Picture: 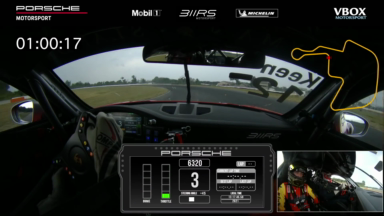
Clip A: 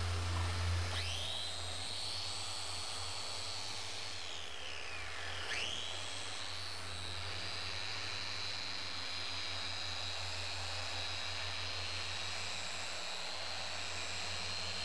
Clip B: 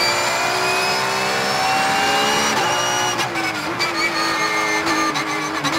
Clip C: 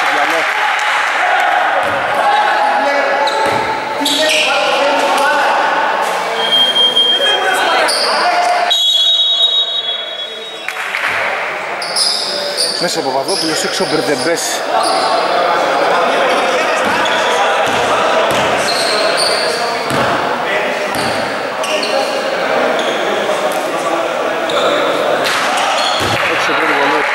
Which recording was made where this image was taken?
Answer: B